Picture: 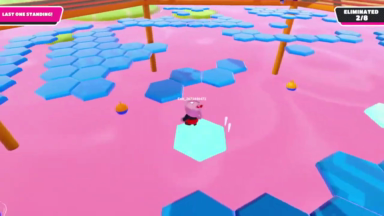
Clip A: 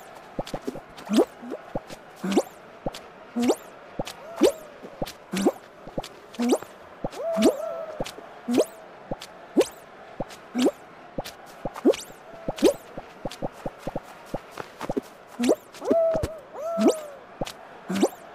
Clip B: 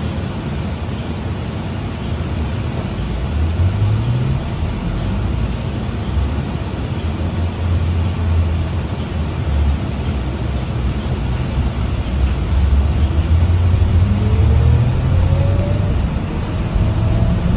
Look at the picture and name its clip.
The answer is A